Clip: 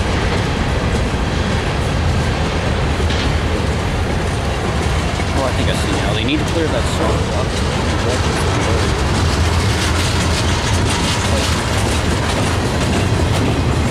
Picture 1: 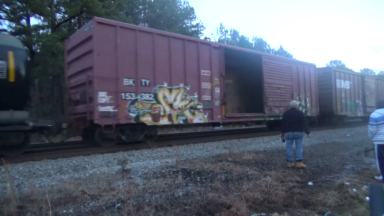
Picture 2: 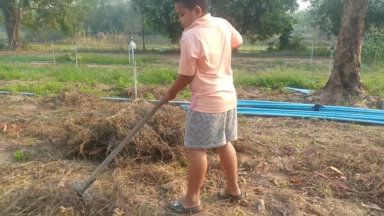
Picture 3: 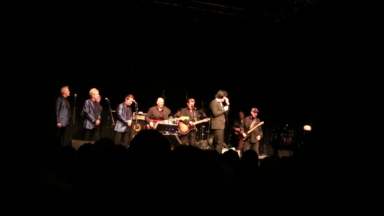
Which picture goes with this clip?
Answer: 1